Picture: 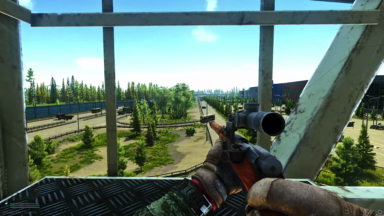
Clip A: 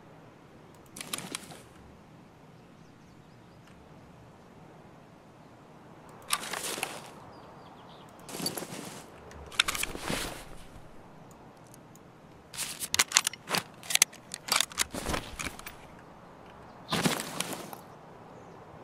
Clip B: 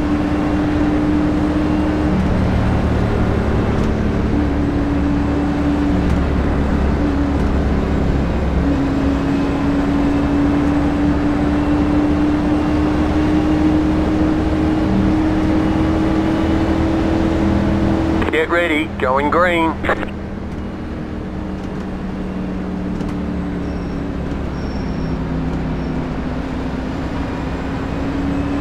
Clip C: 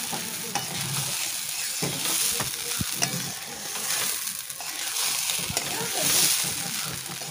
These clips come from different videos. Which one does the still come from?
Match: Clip A